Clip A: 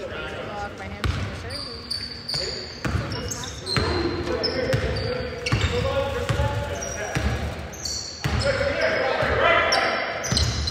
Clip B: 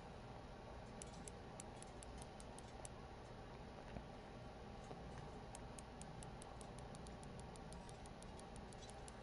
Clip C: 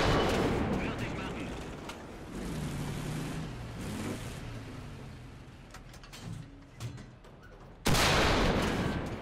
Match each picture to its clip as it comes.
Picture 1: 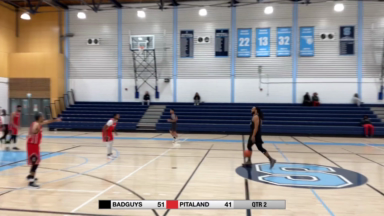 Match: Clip A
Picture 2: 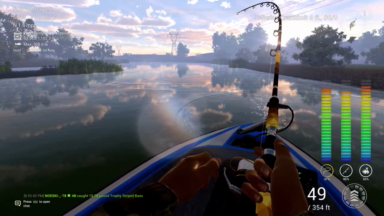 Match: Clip B